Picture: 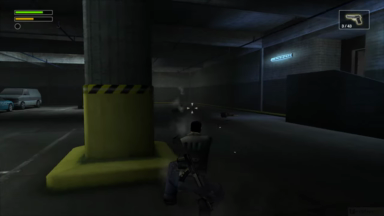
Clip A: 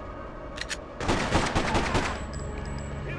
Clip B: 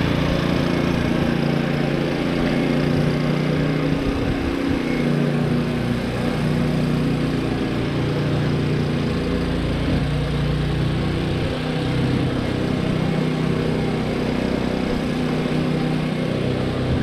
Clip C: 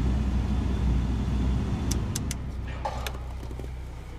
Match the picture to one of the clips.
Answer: A